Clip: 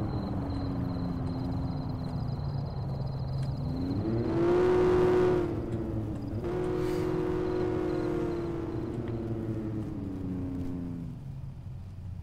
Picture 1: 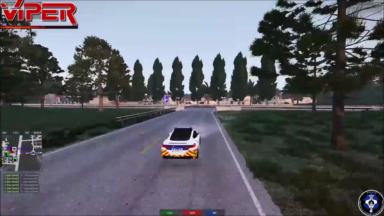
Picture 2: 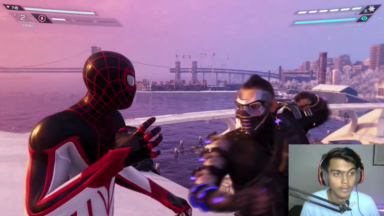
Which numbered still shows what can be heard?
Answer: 1